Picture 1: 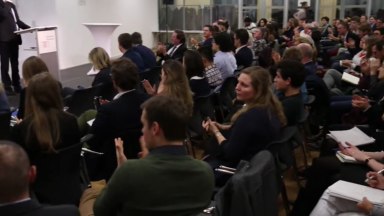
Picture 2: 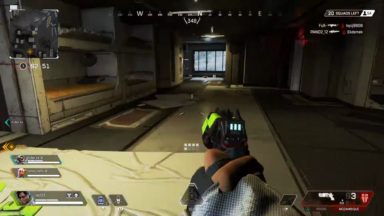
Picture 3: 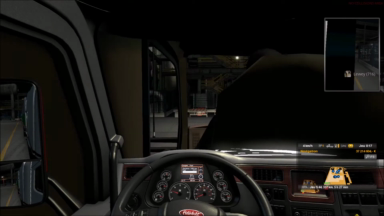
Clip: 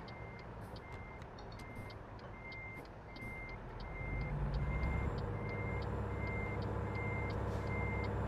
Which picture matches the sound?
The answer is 3